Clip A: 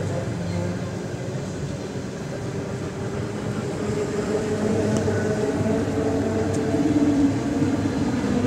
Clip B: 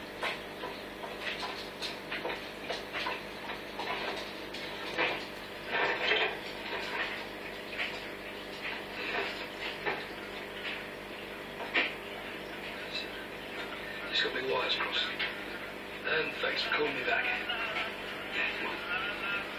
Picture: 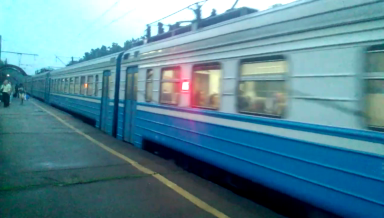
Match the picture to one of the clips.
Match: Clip A